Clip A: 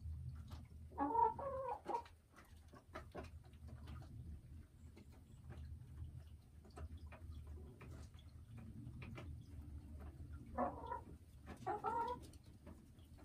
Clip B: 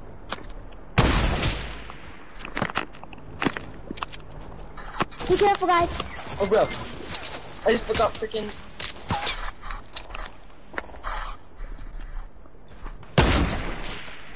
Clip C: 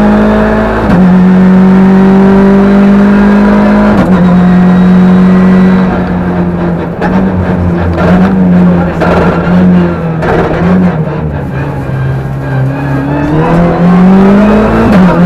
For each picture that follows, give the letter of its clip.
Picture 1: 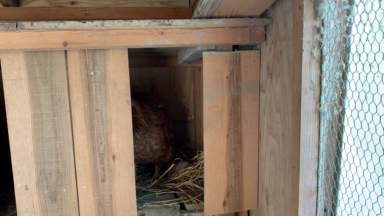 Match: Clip A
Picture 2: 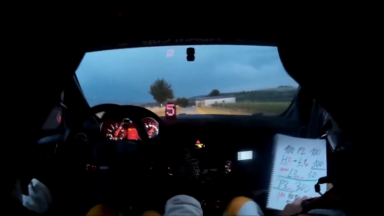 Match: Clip C